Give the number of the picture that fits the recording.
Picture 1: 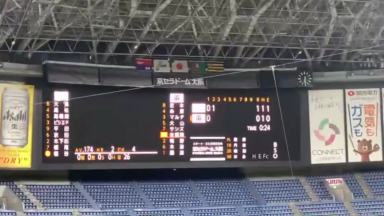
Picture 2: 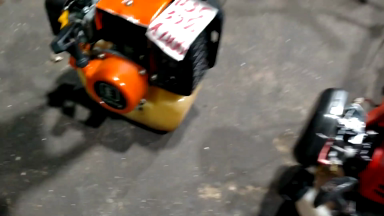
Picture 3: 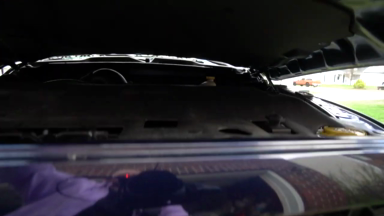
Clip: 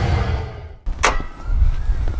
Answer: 3